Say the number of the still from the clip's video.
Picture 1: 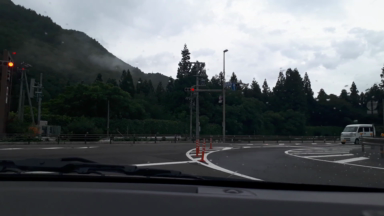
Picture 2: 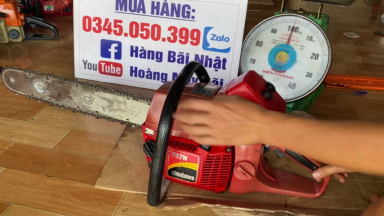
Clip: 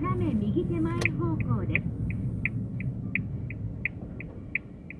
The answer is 1